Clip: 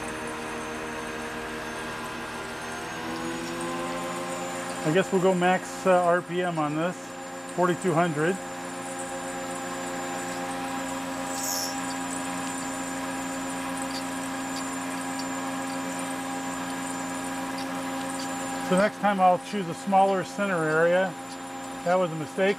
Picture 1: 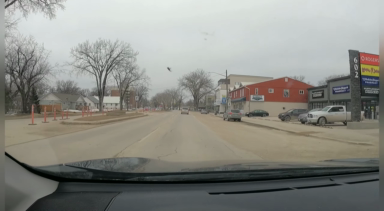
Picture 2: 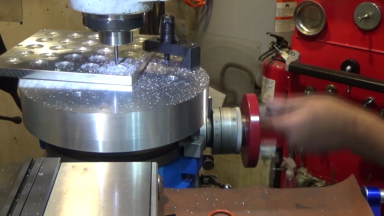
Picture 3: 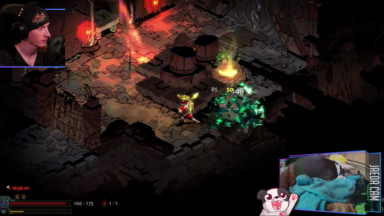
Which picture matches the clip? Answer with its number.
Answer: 2